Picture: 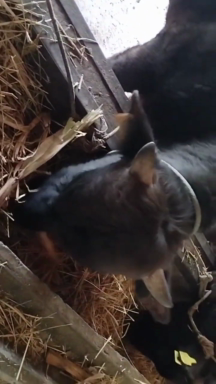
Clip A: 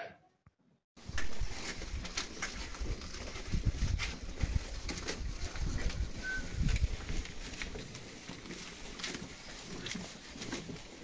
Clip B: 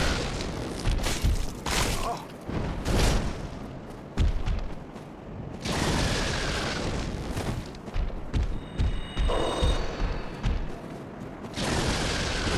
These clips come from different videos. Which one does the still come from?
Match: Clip A